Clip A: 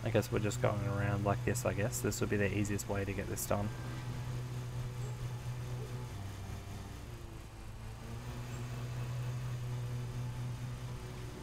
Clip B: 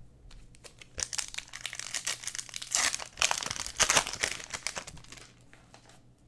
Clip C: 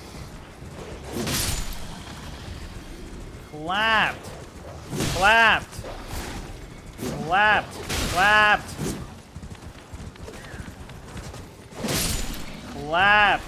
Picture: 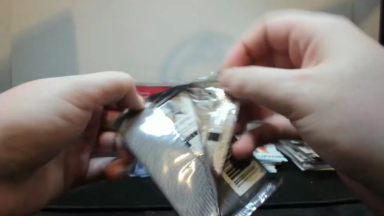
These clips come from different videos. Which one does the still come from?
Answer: B